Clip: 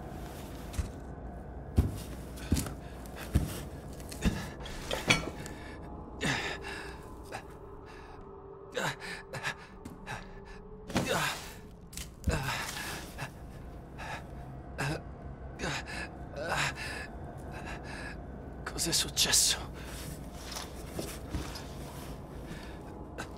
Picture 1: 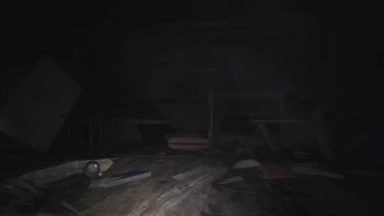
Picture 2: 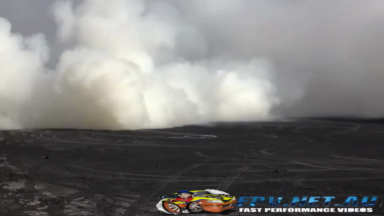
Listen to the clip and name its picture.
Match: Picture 1